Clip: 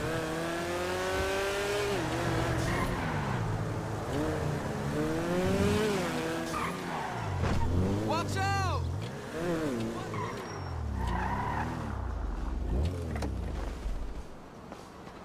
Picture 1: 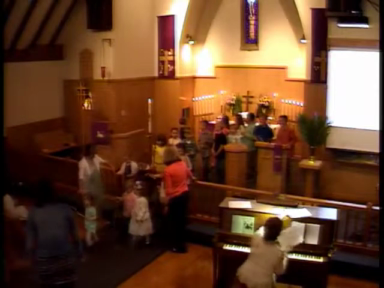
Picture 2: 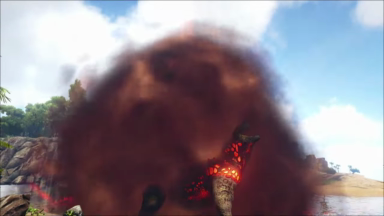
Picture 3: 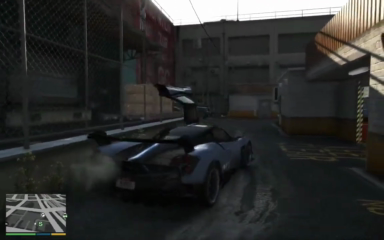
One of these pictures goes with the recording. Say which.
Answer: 3